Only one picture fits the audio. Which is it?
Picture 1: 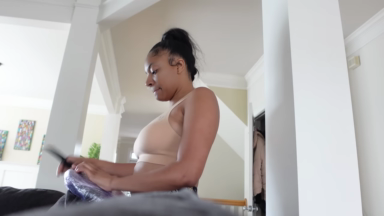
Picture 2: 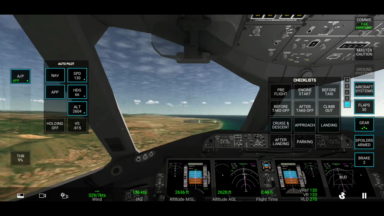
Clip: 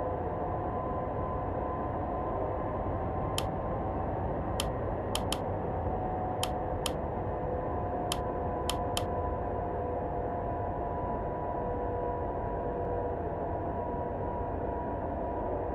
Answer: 2